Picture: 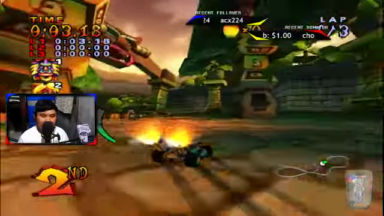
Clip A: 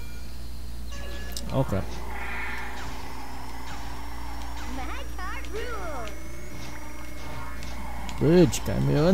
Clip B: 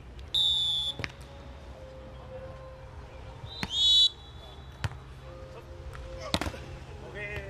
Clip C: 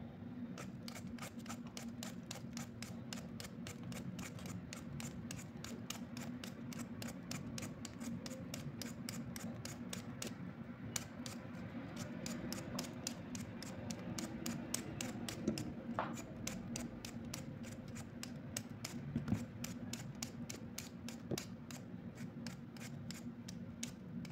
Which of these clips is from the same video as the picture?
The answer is A